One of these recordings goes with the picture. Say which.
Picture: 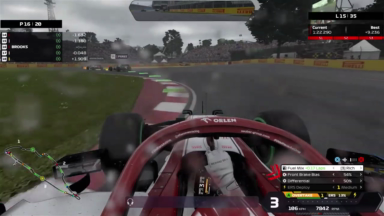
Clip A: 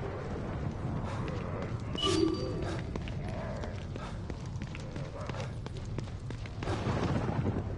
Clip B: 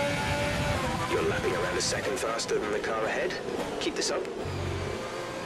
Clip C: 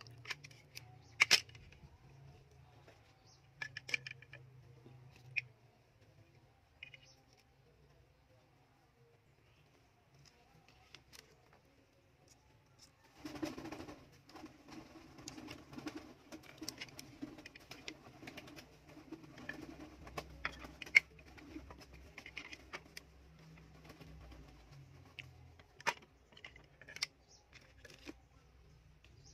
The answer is B